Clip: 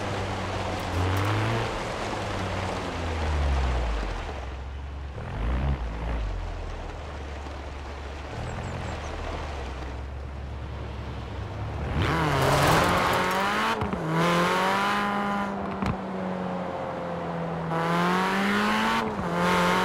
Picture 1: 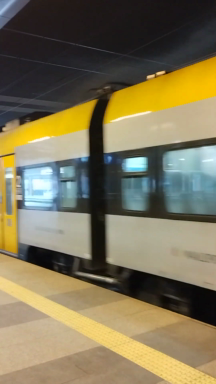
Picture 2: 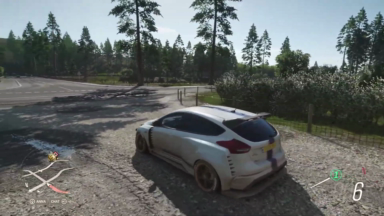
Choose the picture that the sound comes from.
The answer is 2